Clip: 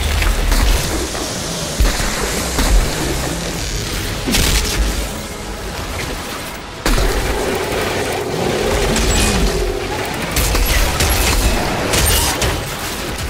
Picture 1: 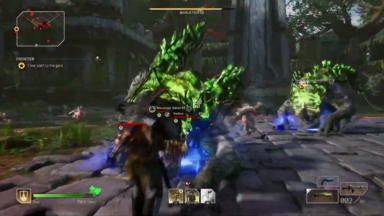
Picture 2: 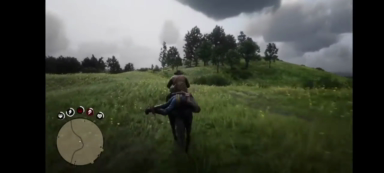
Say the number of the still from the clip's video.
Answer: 1